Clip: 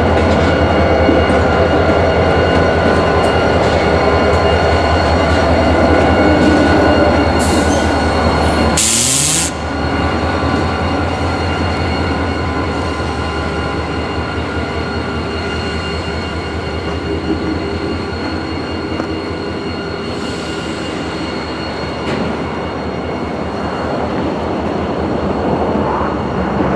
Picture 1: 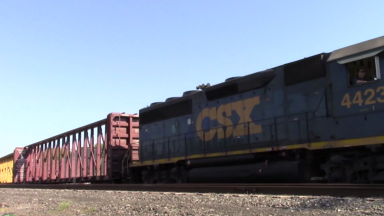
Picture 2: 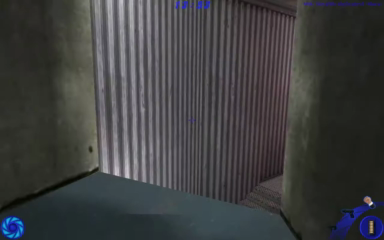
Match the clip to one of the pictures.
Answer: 1